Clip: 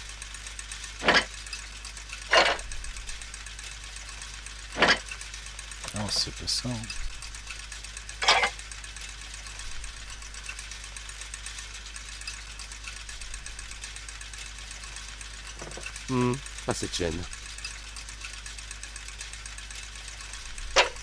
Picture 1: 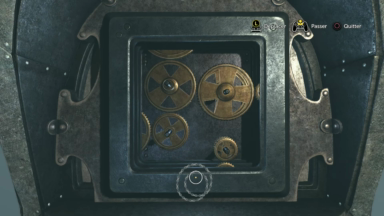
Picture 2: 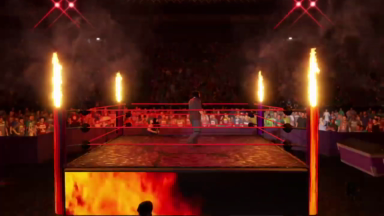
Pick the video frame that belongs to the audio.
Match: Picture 1